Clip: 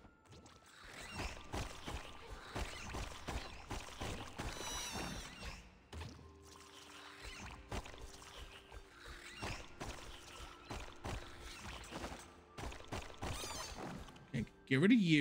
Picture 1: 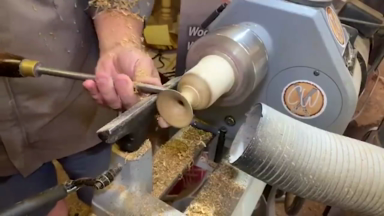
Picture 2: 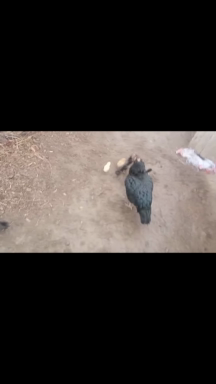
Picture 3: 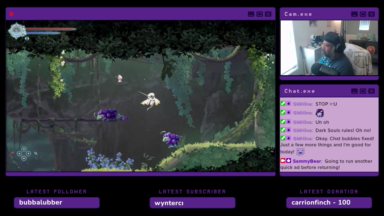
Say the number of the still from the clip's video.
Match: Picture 3